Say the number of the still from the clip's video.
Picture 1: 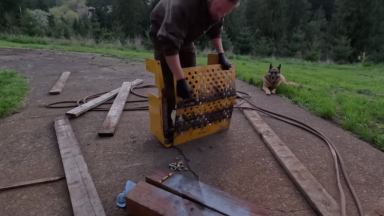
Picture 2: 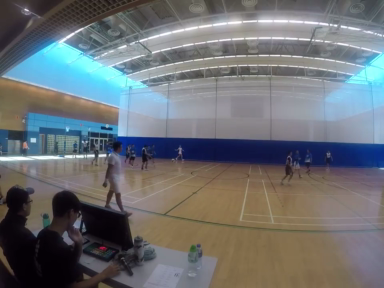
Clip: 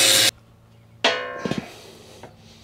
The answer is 1